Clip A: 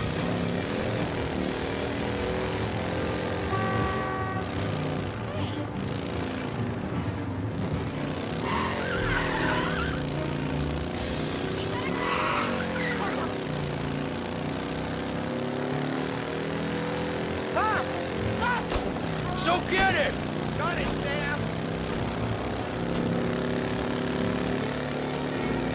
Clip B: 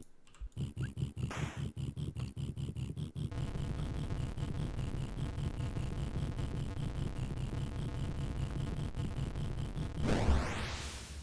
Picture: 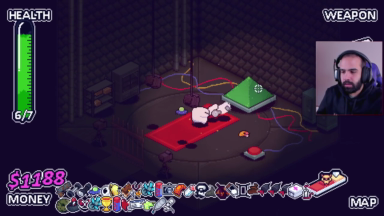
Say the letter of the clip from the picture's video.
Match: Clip B